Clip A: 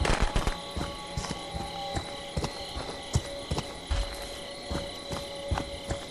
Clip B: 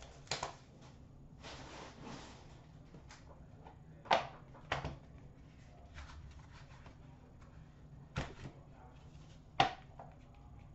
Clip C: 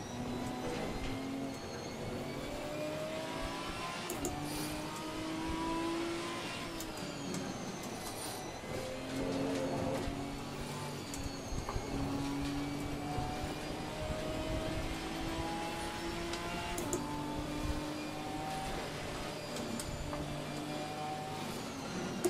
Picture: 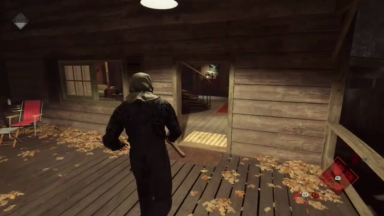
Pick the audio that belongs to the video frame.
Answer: A